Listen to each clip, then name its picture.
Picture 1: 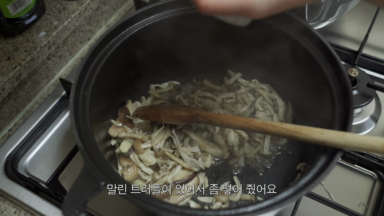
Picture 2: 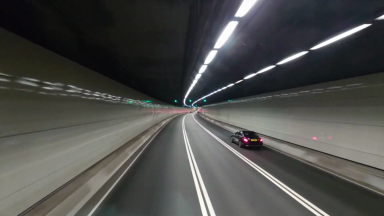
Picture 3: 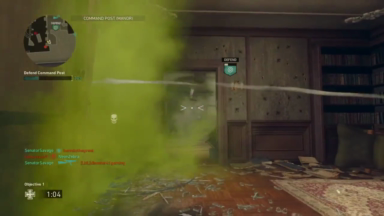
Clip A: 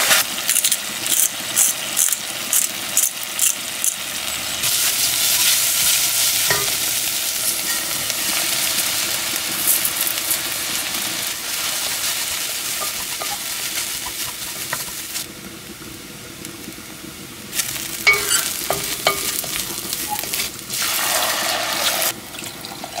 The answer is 1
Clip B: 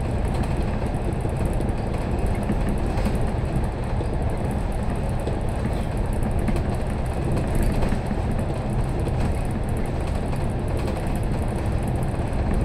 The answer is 2